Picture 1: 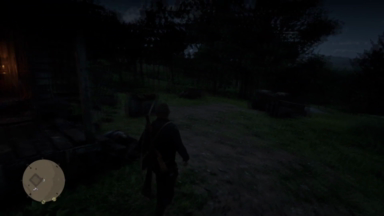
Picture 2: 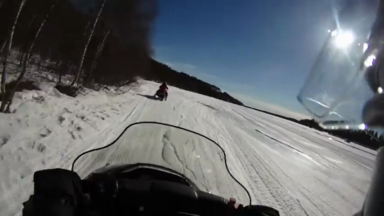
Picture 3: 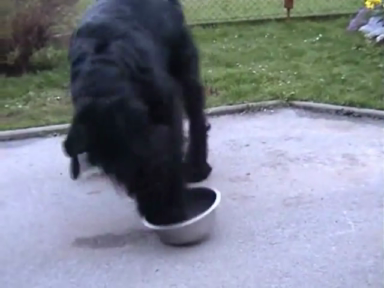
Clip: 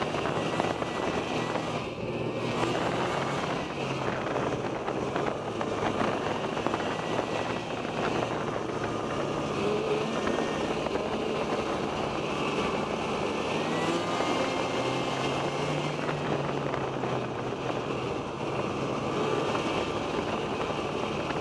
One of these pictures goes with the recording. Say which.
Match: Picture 2